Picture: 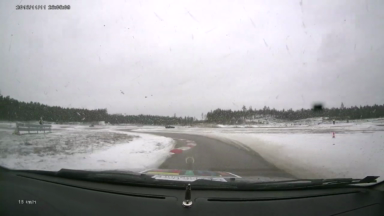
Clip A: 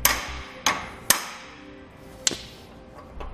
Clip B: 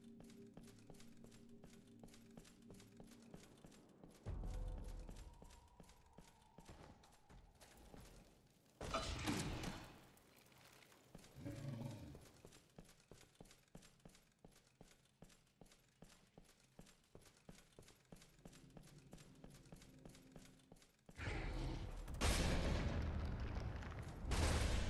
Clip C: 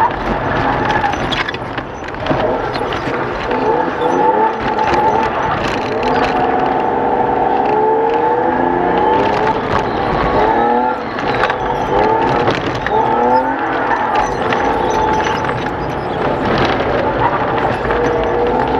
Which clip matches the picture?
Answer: C